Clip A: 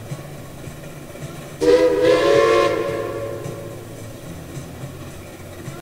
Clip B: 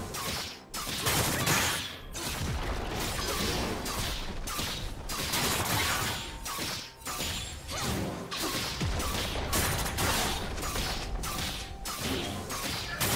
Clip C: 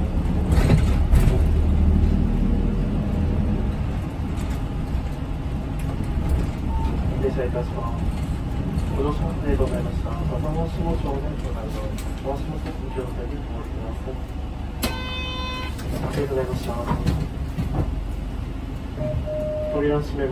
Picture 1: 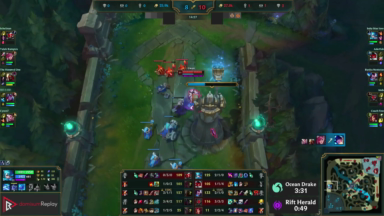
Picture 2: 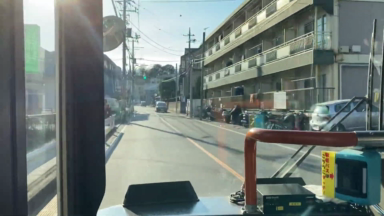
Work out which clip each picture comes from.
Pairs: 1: B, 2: C